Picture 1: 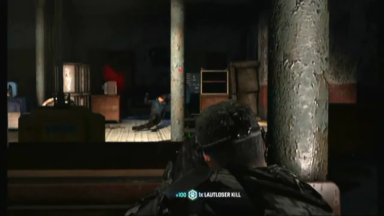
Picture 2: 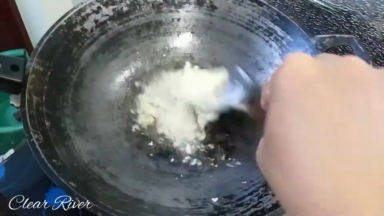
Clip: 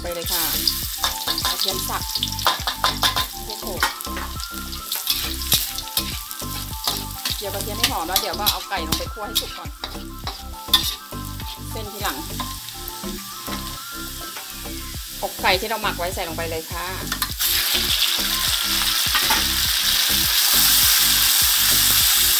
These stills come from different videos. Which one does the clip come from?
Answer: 2